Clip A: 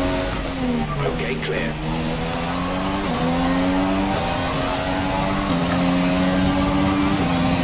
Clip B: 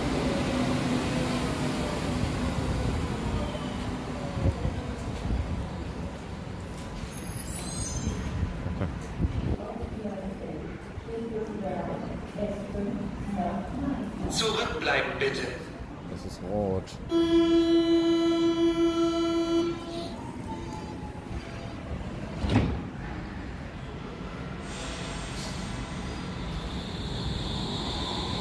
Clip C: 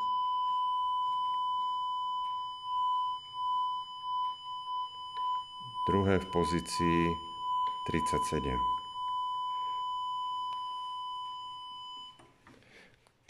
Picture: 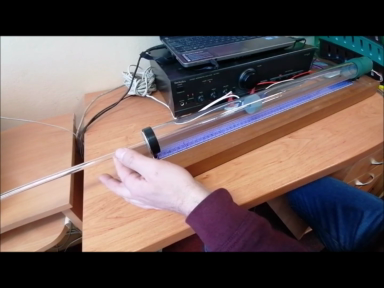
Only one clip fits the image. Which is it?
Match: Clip C